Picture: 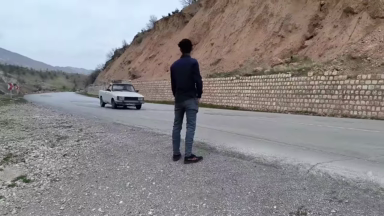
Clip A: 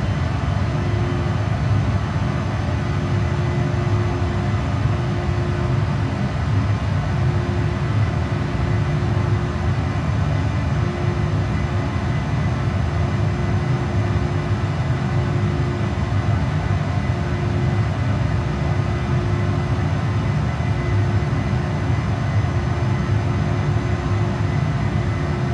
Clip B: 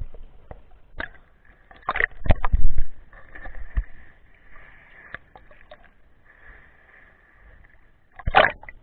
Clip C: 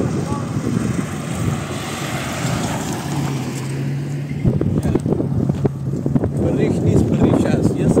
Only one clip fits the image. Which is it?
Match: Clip C